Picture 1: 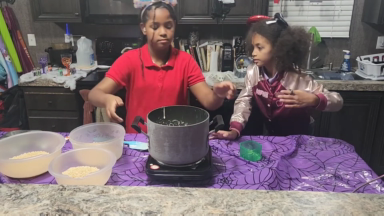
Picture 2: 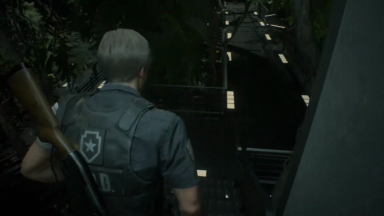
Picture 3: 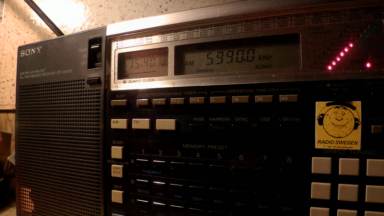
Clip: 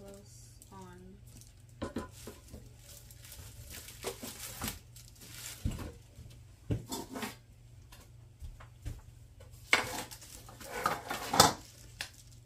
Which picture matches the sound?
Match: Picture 1